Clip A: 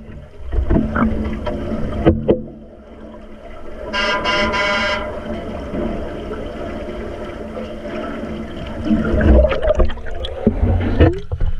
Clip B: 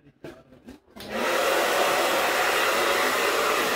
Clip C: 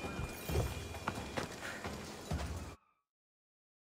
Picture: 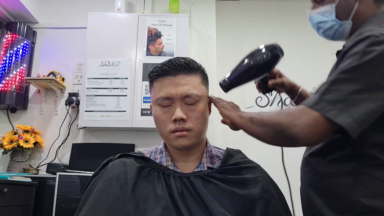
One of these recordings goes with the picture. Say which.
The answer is B